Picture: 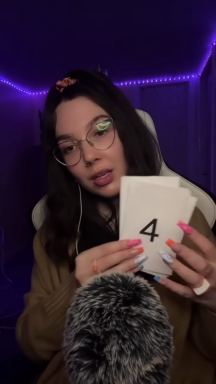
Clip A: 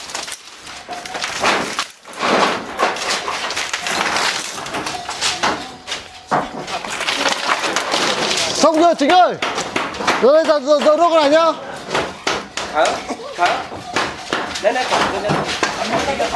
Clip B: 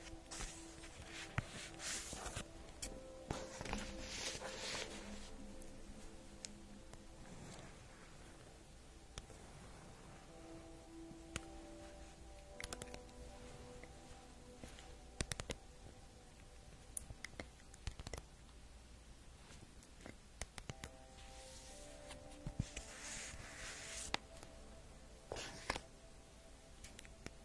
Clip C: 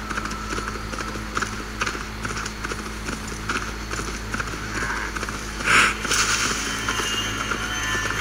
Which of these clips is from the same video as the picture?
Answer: B